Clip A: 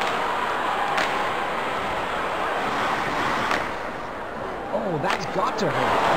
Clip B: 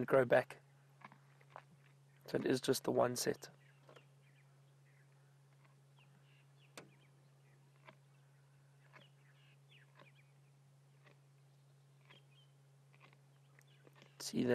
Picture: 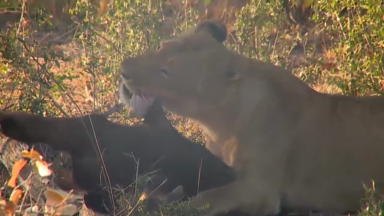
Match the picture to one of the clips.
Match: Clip B